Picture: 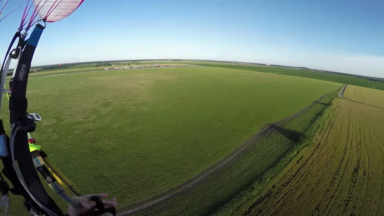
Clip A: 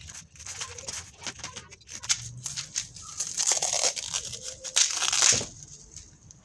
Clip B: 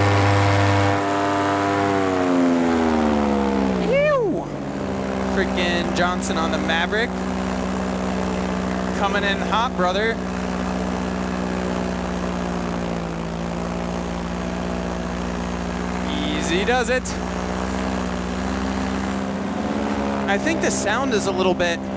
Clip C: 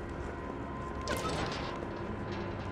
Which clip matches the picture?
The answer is B